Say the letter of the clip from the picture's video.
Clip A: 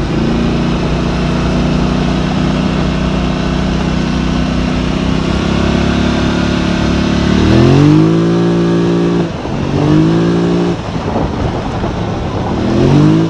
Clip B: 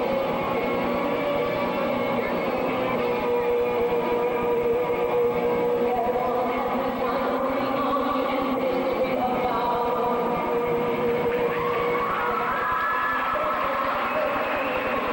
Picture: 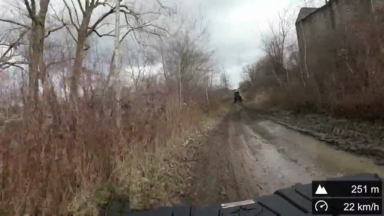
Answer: A